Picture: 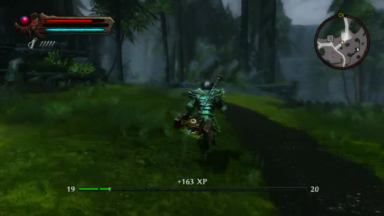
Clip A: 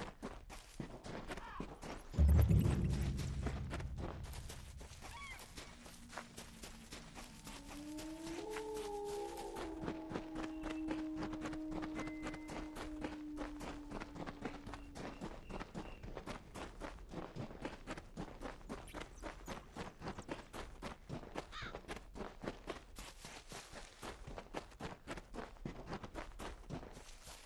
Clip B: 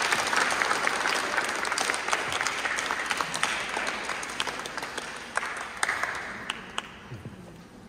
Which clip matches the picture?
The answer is A